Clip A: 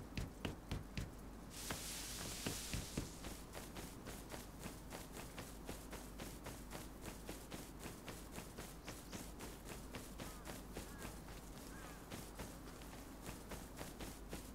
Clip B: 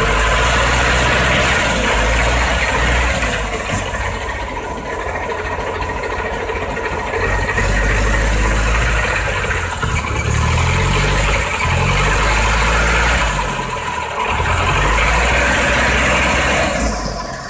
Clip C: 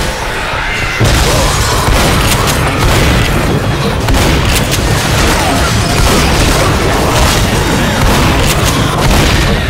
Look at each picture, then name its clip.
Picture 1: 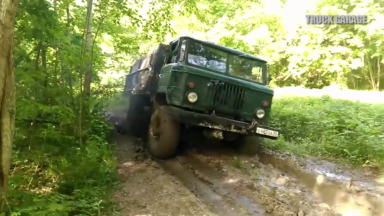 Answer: B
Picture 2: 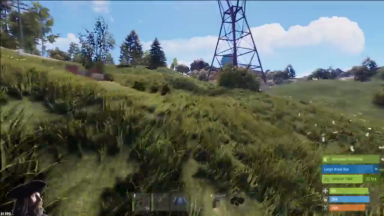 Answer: A